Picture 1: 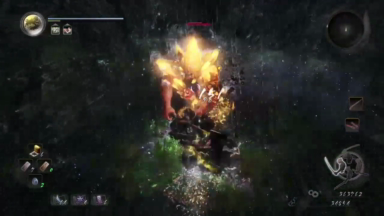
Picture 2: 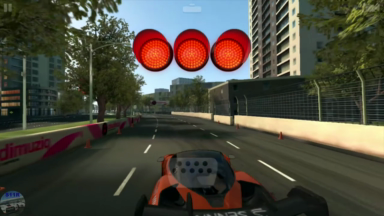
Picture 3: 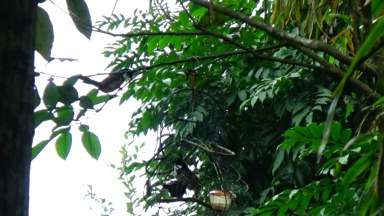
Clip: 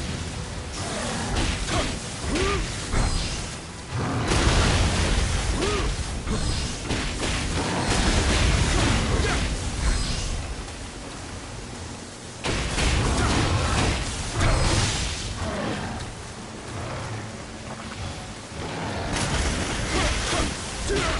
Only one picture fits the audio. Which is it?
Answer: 1